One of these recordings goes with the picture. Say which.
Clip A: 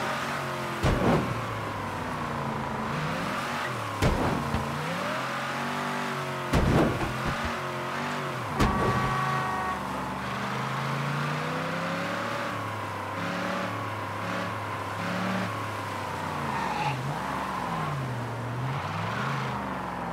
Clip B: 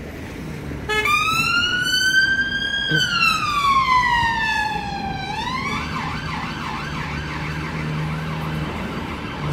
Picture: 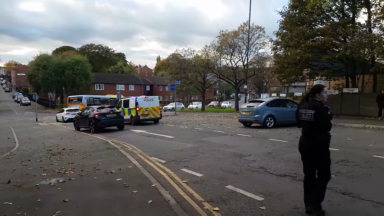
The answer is B